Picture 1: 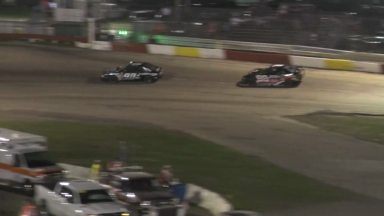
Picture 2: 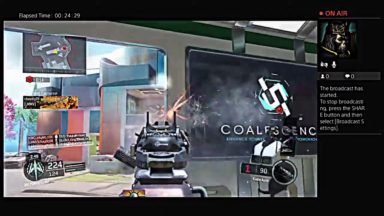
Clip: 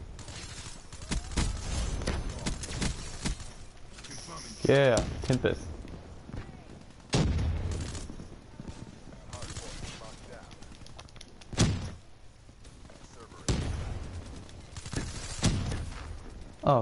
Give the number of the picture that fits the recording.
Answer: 2